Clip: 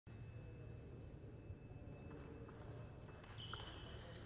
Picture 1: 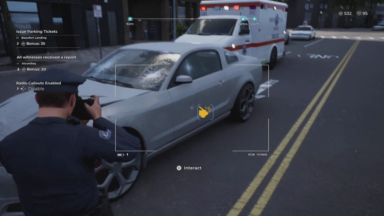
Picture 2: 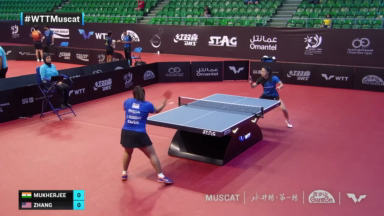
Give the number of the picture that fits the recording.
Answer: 2